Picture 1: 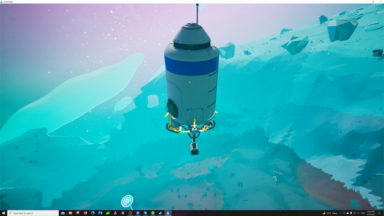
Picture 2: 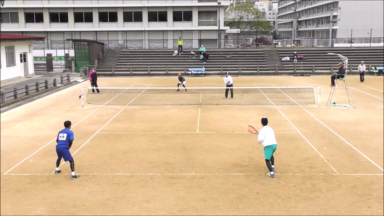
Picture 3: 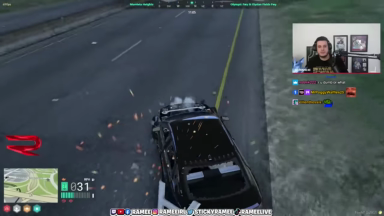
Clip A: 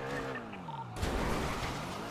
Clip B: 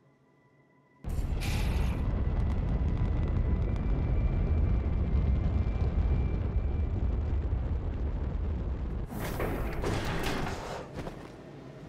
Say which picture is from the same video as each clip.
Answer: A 3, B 1